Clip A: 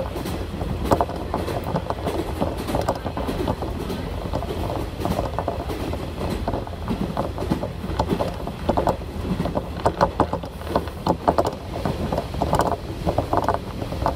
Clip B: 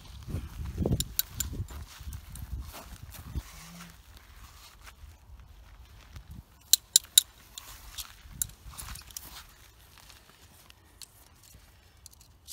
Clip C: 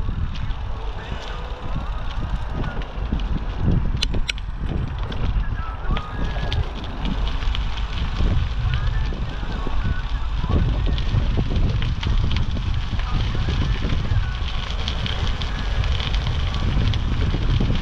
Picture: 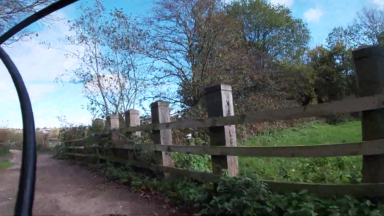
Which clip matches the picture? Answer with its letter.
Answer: C